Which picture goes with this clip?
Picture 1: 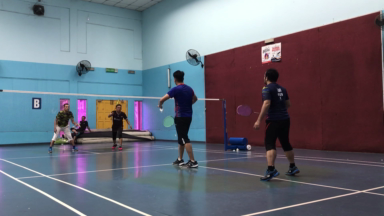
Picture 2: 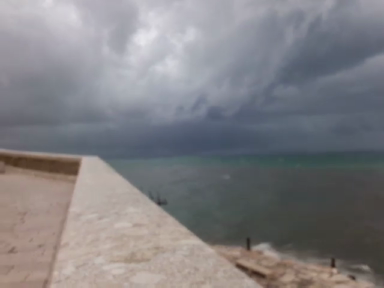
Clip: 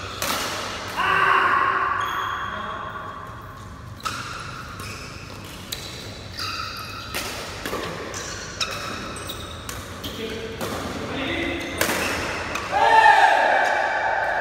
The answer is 1